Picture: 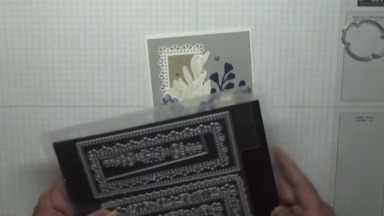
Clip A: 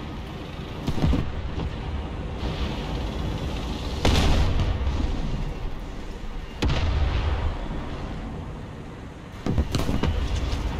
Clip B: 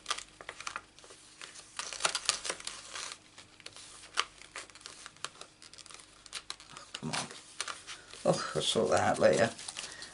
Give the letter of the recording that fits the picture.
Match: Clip B